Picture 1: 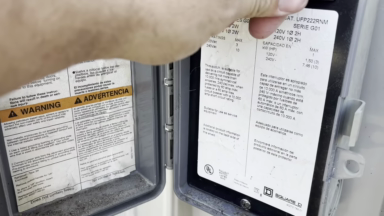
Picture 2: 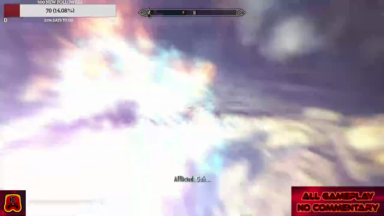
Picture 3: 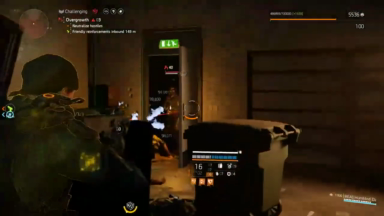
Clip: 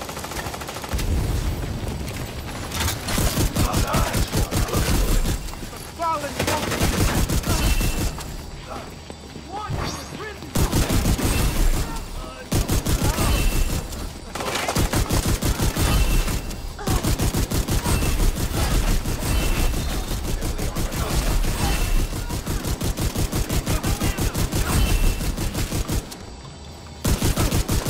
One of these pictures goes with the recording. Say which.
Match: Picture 3